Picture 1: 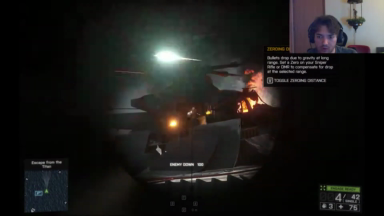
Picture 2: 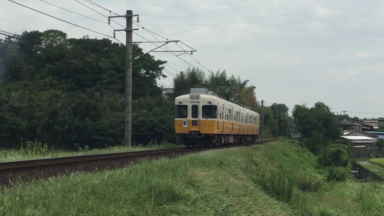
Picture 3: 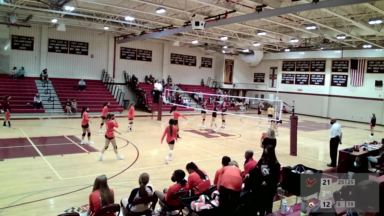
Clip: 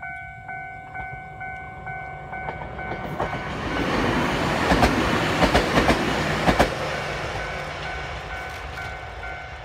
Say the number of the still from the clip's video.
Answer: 2